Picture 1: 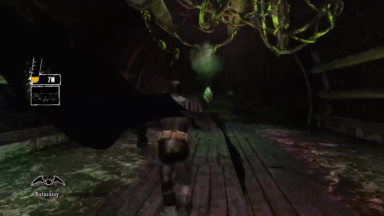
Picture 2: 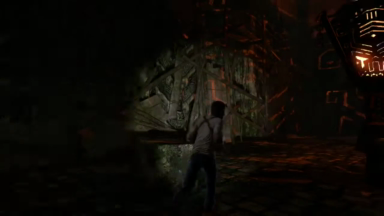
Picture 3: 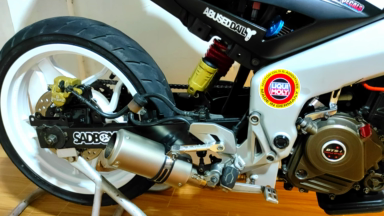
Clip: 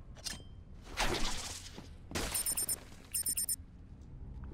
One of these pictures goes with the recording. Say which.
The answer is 1